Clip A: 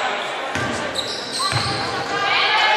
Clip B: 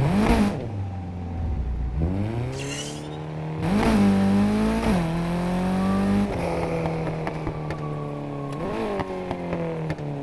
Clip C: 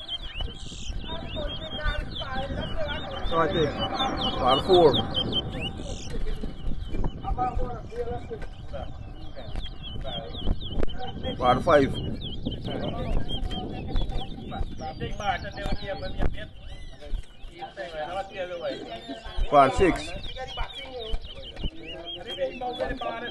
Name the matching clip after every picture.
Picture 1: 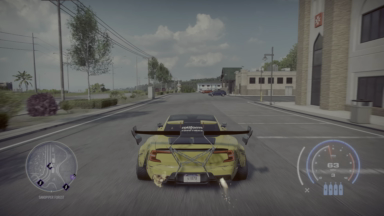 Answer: B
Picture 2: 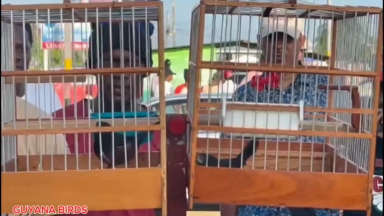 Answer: C